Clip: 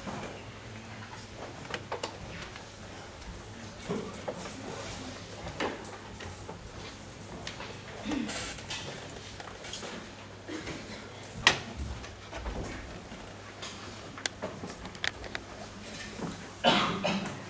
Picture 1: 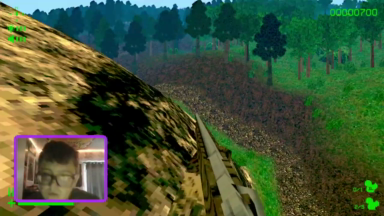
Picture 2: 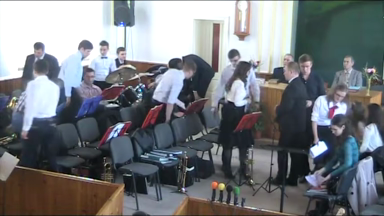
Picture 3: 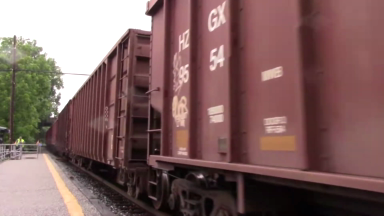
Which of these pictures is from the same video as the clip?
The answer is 2